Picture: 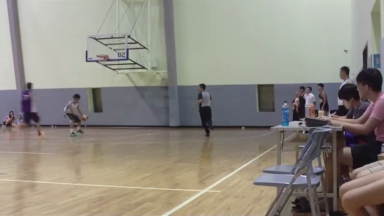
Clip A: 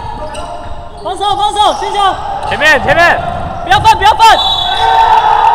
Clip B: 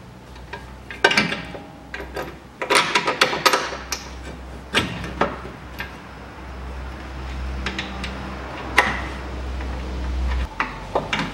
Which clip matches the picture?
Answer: A